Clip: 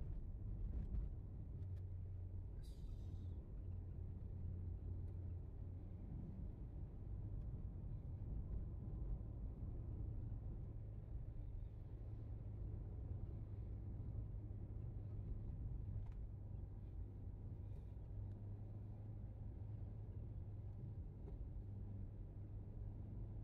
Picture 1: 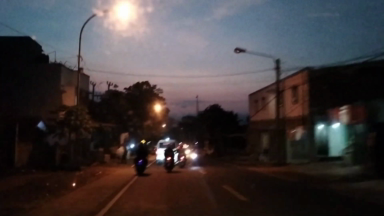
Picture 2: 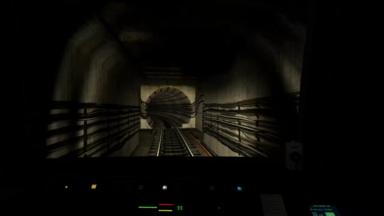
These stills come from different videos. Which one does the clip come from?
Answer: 1